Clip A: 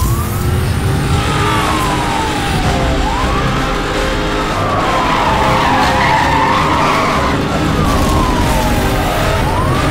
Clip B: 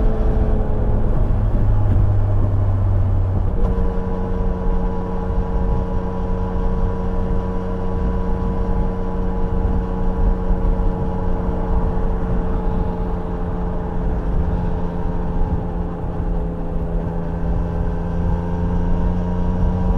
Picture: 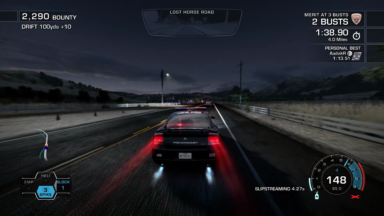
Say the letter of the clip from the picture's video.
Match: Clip A